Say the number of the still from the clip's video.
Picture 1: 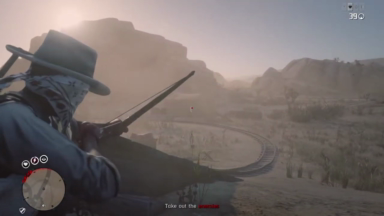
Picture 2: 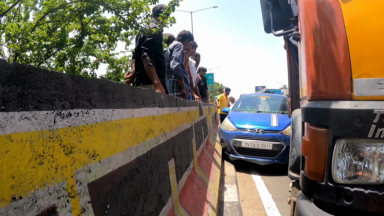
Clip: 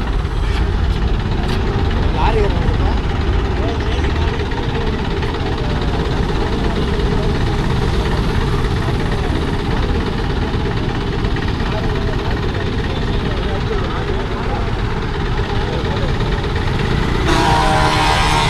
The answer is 2